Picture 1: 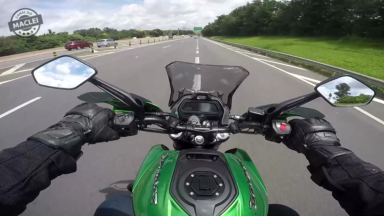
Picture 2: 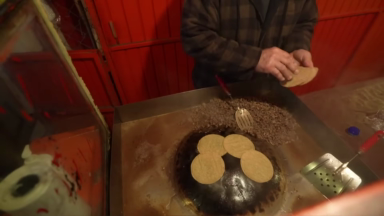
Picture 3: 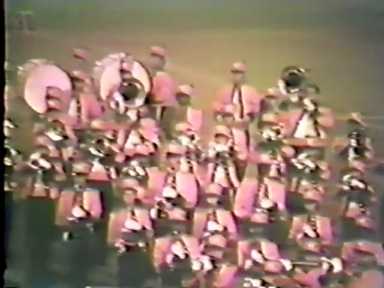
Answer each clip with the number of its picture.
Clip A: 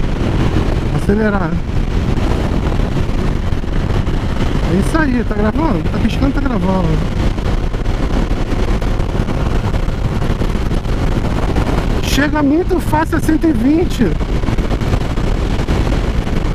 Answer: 1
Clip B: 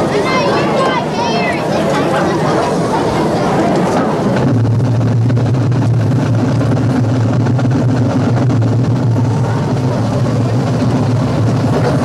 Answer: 3